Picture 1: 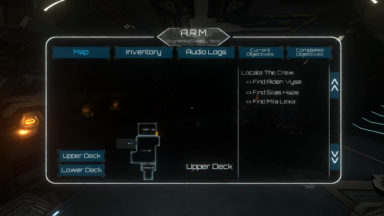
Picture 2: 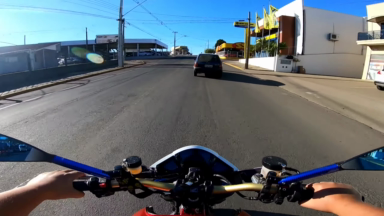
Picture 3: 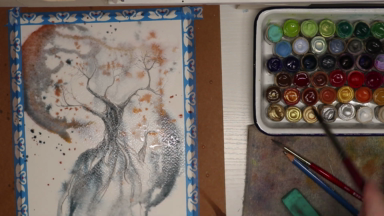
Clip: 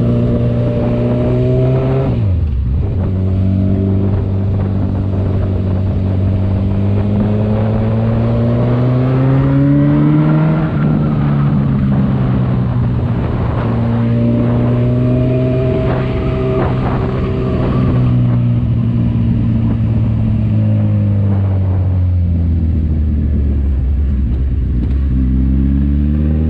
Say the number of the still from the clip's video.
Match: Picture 2